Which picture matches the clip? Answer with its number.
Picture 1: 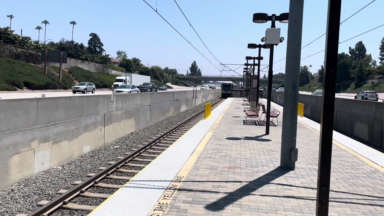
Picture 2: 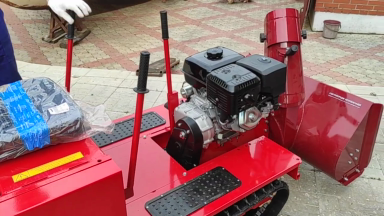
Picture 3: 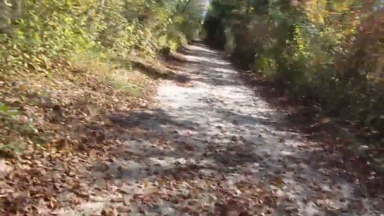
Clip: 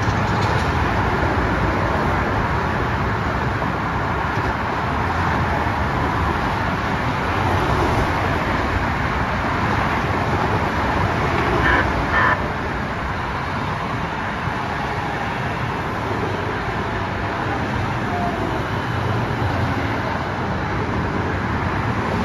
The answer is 1